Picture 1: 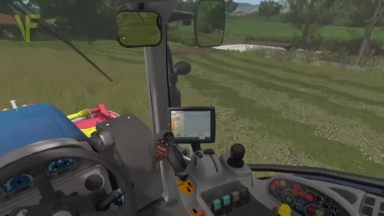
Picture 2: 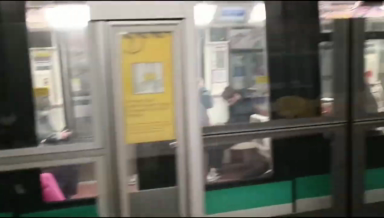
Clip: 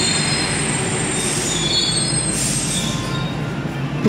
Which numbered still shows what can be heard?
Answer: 2